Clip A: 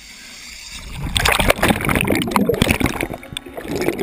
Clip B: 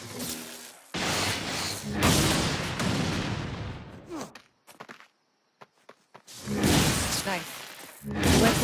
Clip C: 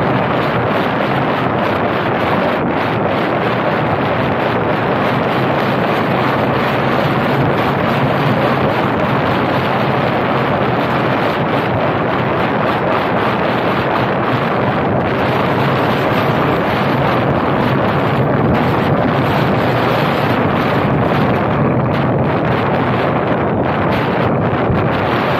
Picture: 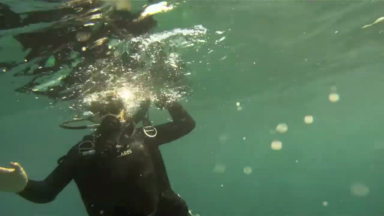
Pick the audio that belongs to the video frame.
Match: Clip A